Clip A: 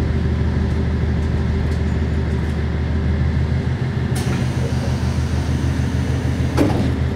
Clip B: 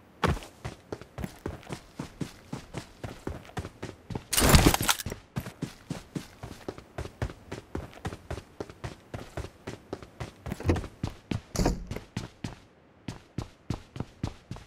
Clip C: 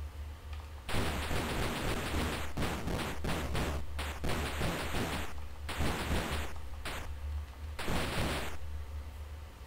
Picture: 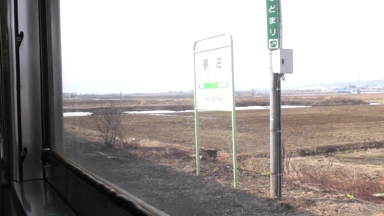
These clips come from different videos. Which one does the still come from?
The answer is A